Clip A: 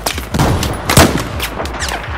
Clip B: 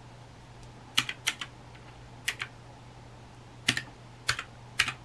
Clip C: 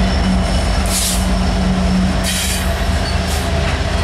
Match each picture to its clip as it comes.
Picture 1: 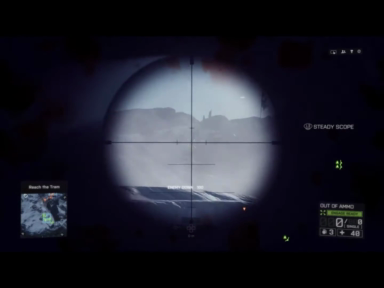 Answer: A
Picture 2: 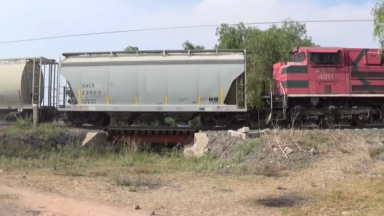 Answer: C